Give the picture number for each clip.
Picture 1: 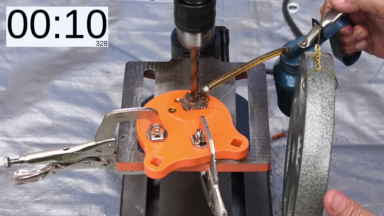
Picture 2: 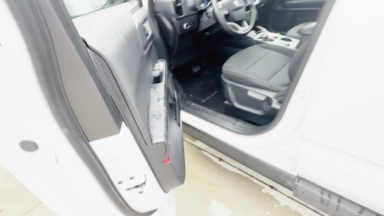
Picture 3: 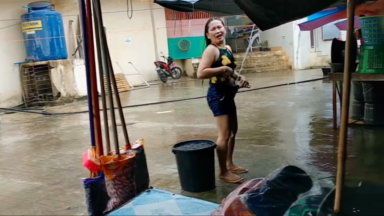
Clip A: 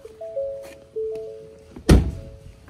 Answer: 2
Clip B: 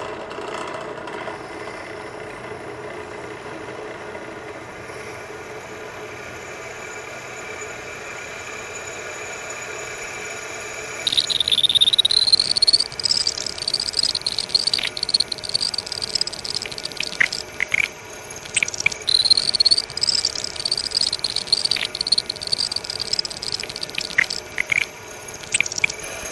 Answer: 1